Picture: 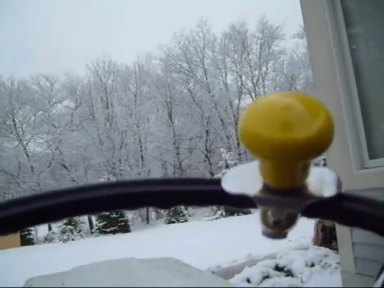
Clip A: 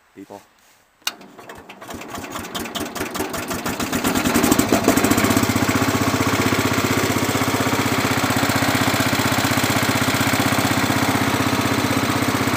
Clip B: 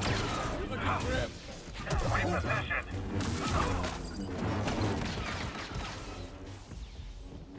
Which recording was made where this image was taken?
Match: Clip A